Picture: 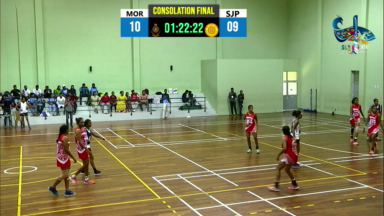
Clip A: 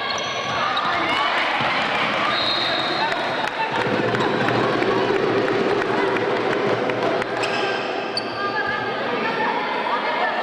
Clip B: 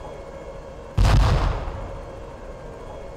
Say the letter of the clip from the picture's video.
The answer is A